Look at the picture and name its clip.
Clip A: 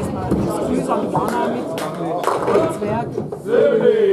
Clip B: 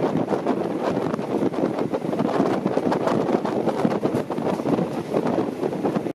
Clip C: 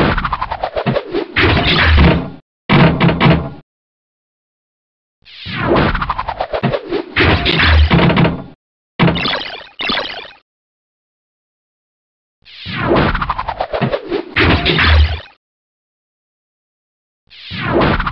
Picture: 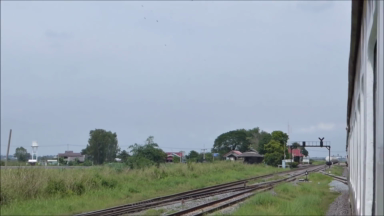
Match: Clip B